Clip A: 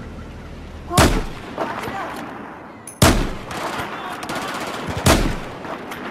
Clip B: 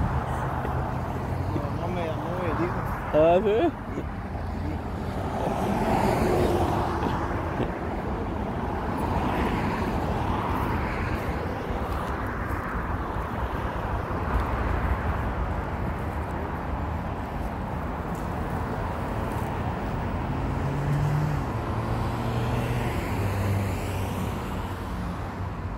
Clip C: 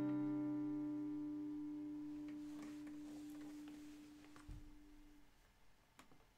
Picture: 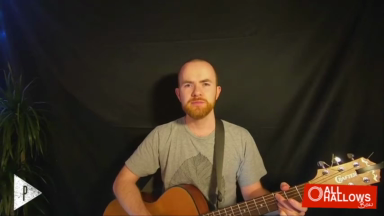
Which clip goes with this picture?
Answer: C